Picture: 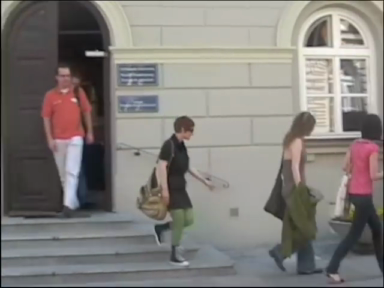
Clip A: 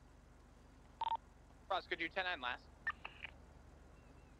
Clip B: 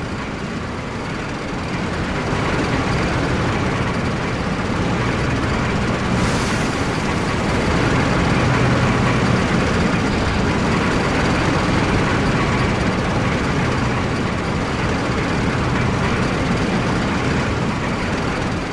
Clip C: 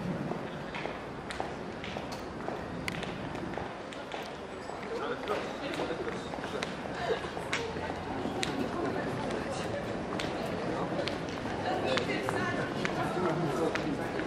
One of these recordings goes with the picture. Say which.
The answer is C